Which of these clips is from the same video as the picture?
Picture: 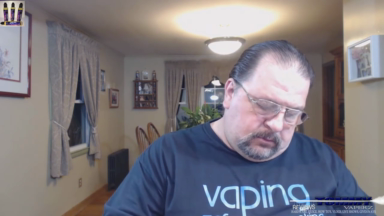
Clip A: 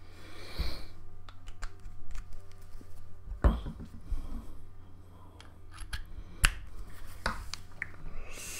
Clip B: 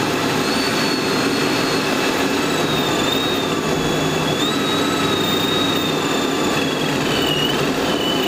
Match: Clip A